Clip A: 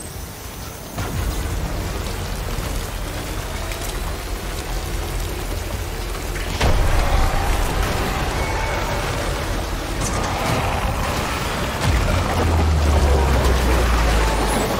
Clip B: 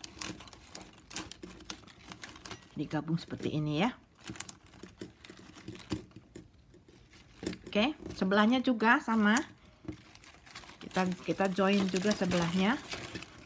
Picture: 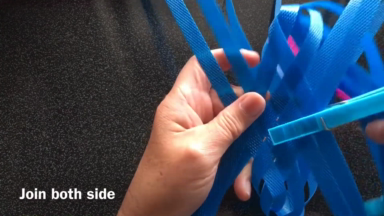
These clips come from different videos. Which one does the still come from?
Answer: B